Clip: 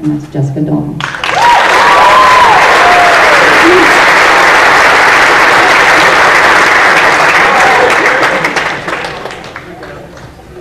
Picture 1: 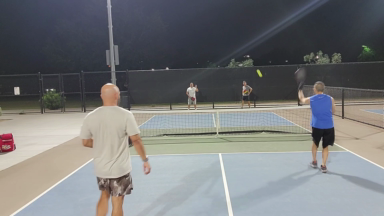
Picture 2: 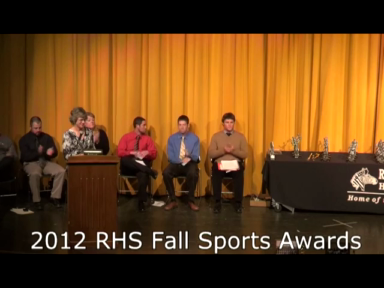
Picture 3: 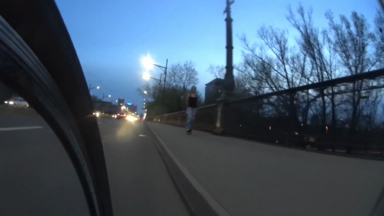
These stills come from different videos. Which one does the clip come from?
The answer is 2